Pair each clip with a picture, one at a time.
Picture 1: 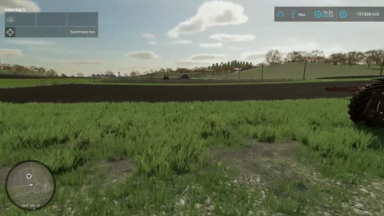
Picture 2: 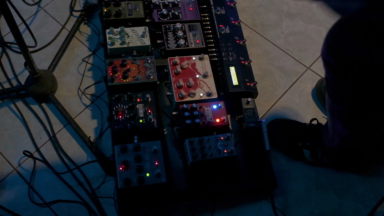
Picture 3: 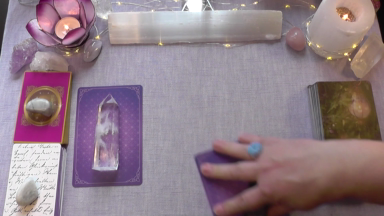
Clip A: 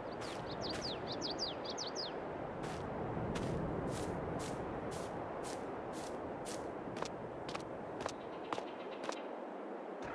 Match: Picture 1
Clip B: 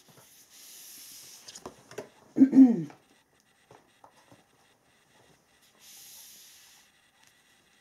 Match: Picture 3